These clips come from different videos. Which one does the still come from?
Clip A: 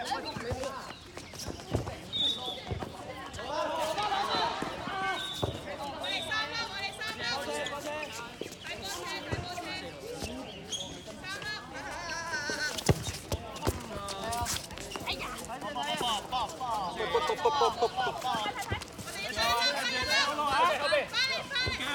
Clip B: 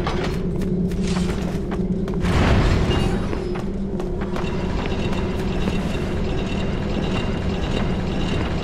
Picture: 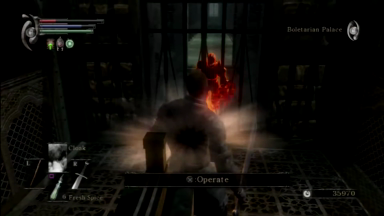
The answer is B